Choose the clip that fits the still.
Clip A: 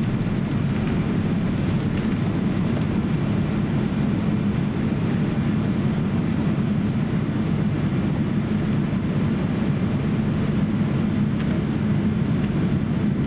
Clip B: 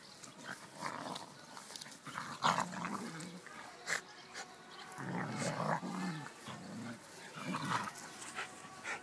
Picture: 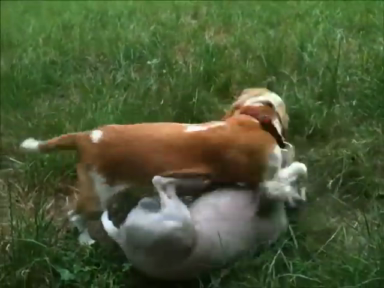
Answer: B